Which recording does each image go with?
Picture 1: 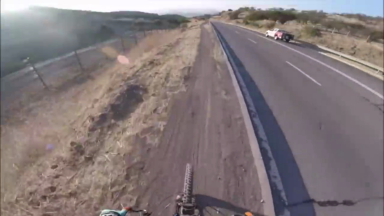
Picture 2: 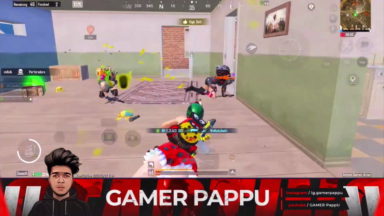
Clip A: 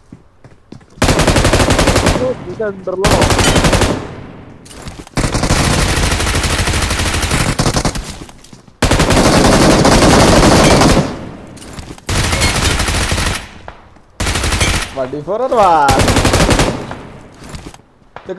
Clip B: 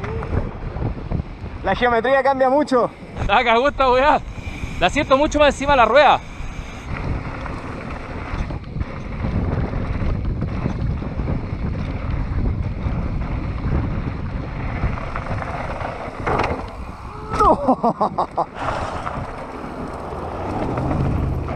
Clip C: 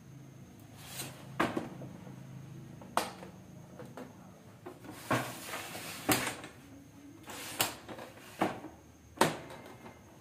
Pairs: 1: B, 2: A